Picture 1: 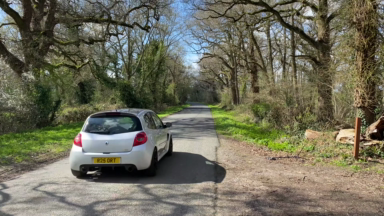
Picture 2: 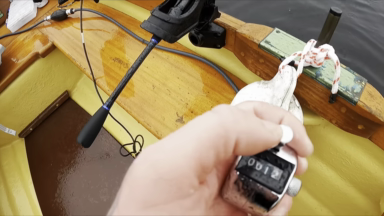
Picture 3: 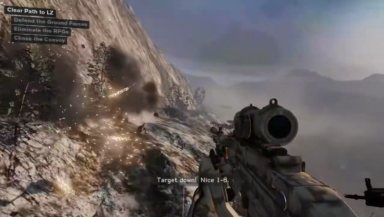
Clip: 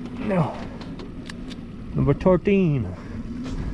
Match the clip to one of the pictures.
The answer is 2